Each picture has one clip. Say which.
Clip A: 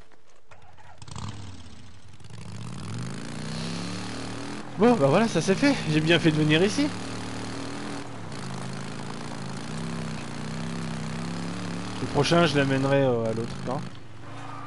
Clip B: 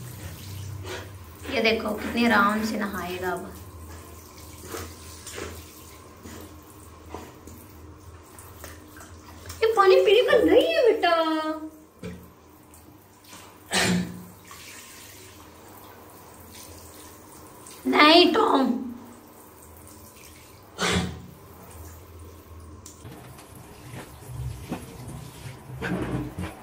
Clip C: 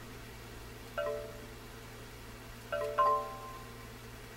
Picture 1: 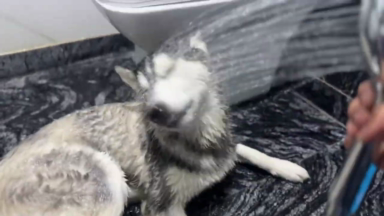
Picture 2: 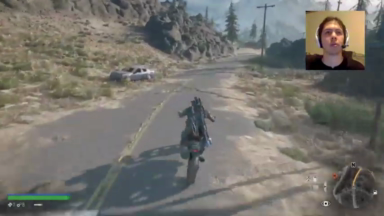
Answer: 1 B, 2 A